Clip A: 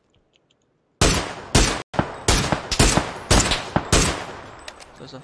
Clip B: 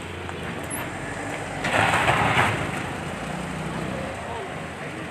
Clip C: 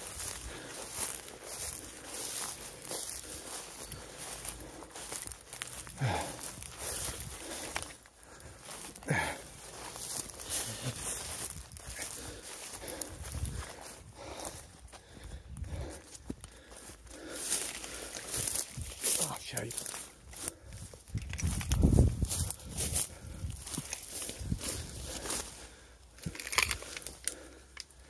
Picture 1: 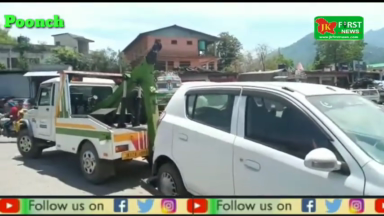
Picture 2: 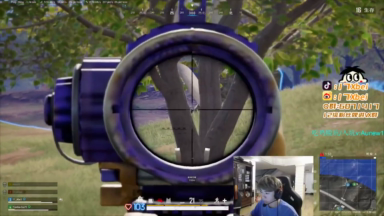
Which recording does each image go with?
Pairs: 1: B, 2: A